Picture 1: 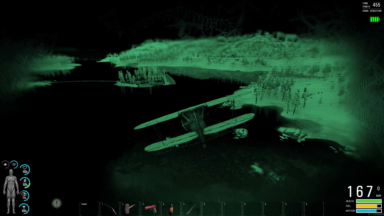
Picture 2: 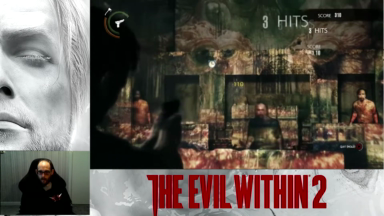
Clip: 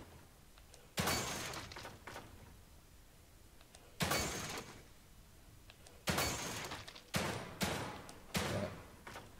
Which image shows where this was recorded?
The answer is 2